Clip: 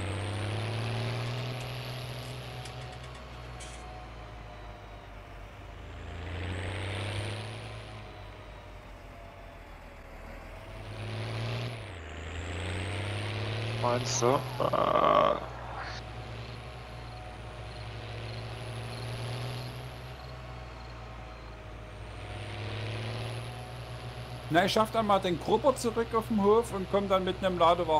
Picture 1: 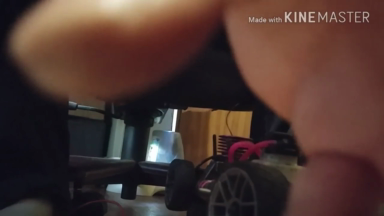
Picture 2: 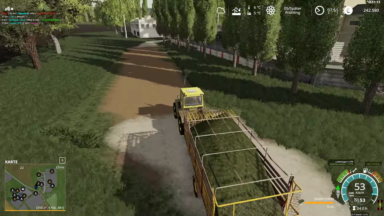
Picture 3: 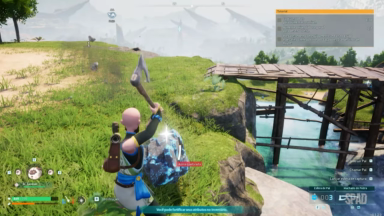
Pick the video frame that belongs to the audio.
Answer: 2